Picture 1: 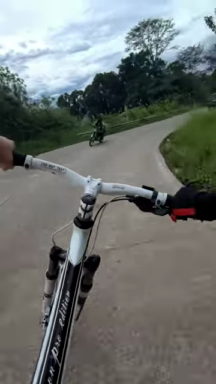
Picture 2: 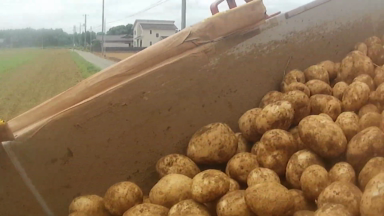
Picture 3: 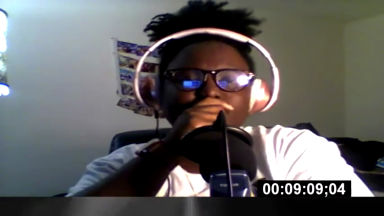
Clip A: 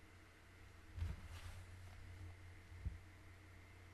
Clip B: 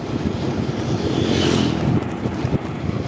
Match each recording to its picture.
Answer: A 3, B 1